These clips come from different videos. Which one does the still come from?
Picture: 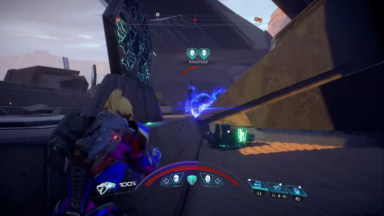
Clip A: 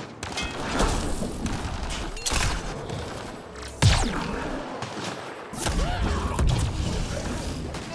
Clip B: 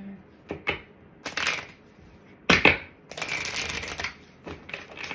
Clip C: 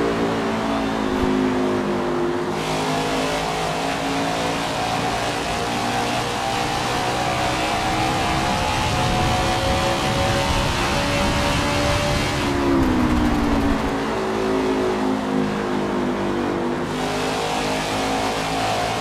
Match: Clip A